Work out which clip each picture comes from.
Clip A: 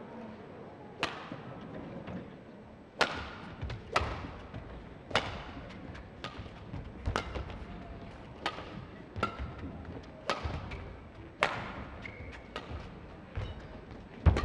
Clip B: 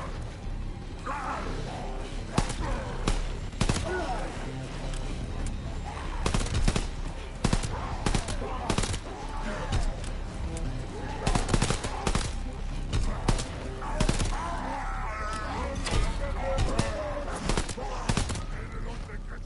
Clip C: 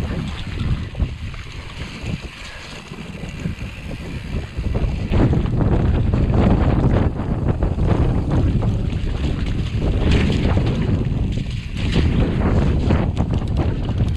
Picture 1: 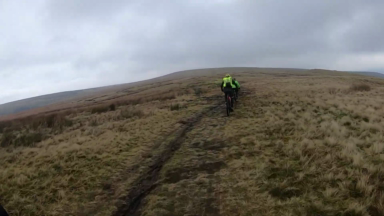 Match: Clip C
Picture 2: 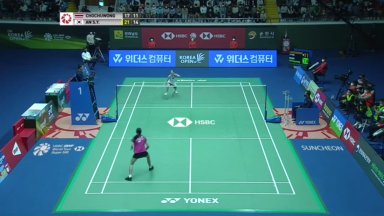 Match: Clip A